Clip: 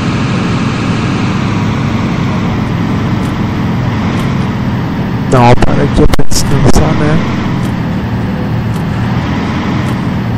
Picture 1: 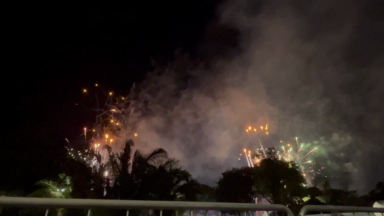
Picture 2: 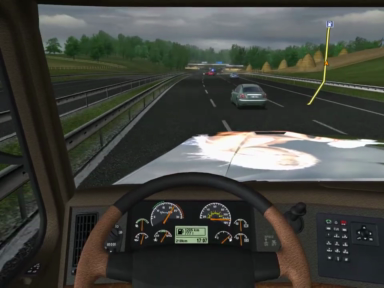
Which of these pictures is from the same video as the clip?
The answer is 2